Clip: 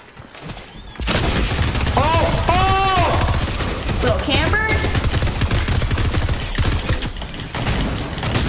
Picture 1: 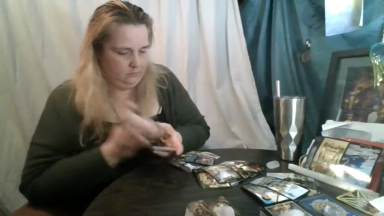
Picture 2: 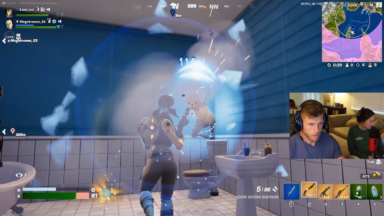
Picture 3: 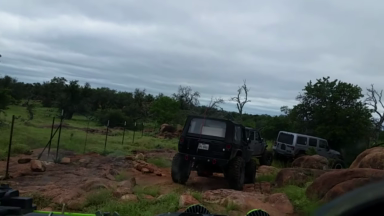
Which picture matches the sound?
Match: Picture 2